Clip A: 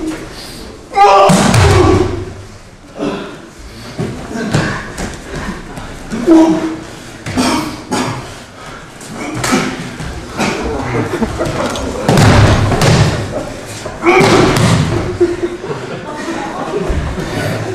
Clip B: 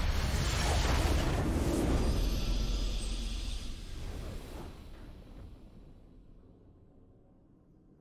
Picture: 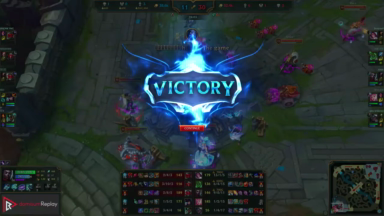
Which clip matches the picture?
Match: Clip B